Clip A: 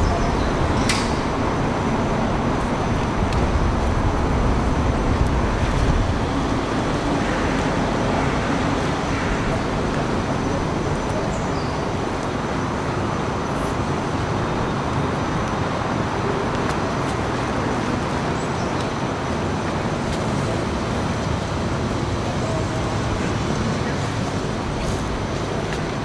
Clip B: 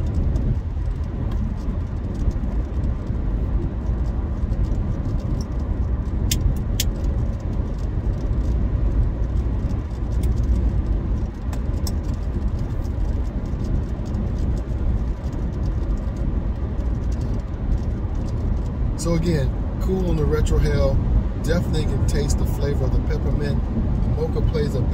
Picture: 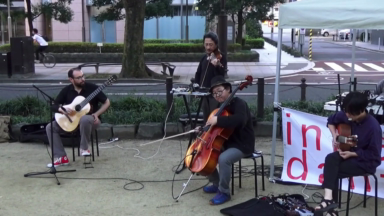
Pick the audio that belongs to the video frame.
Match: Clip A